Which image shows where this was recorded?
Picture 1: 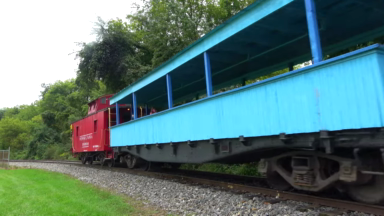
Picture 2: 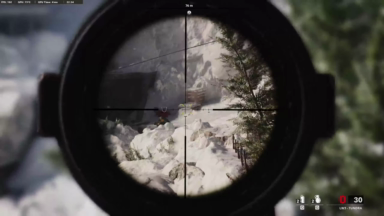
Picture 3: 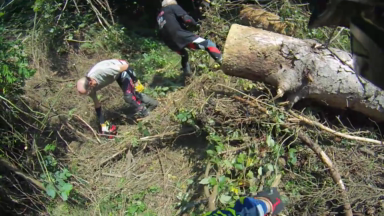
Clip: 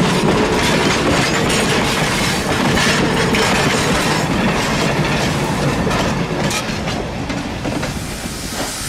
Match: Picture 1